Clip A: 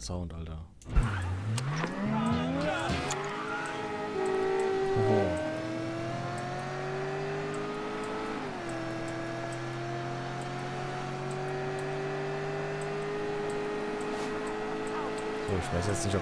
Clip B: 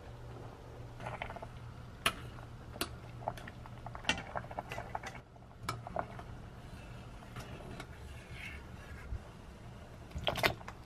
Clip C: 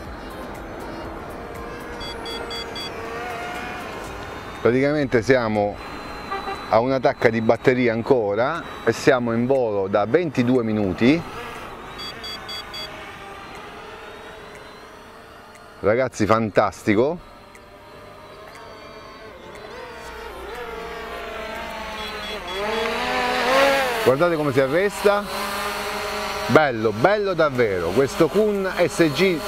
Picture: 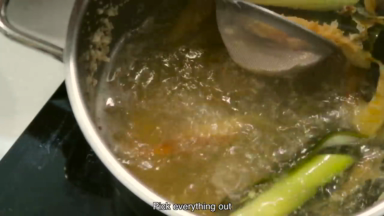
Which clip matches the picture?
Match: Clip B